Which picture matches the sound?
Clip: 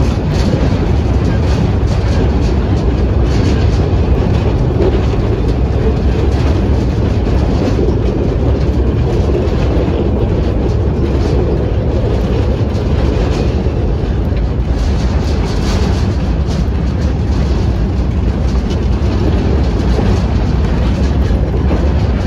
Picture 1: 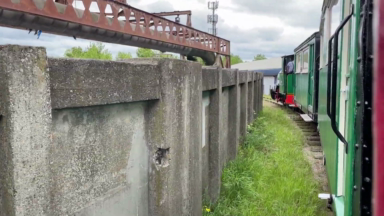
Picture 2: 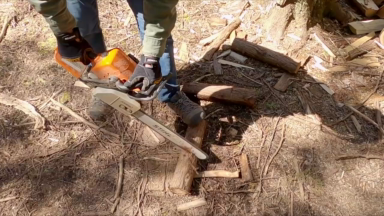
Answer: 1